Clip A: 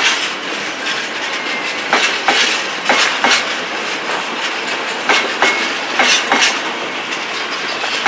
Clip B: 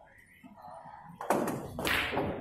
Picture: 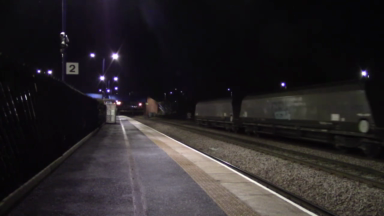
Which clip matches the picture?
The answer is A